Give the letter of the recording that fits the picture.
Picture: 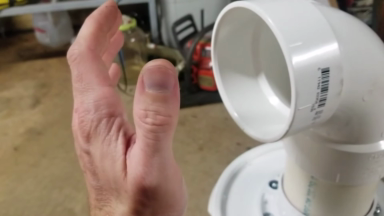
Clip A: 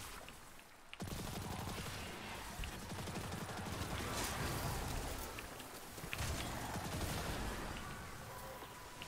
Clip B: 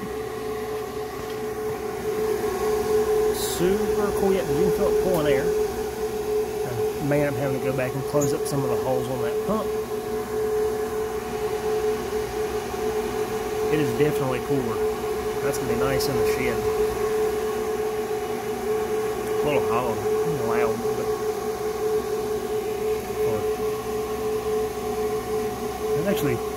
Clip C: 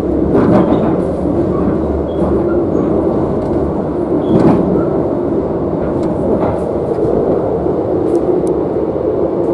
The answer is B